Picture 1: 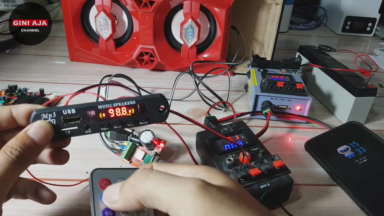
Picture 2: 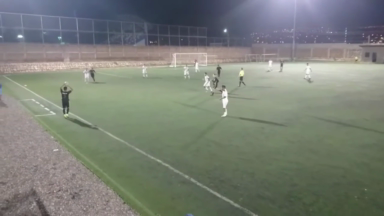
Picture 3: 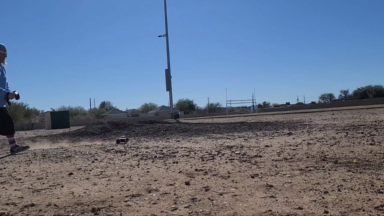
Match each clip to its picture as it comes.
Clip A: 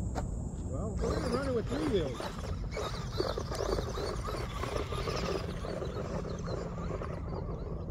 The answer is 3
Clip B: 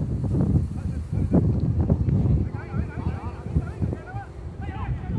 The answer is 2